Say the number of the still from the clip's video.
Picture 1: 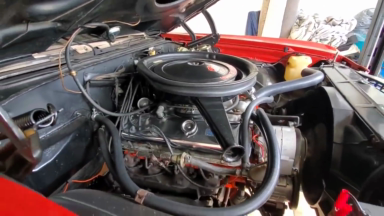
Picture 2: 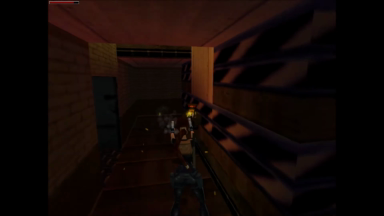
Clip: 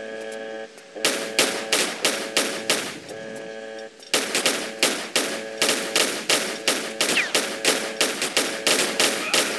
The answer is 2